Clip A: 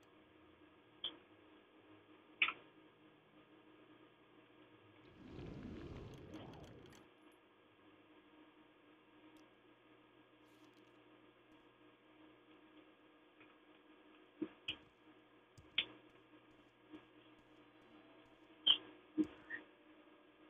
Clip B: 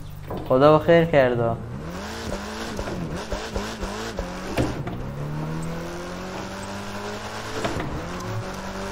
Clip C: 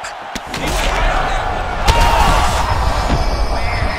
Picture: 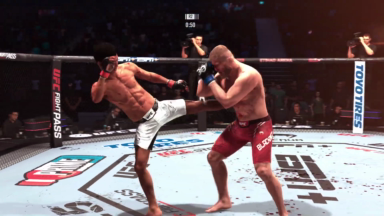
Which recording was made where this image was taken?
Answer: C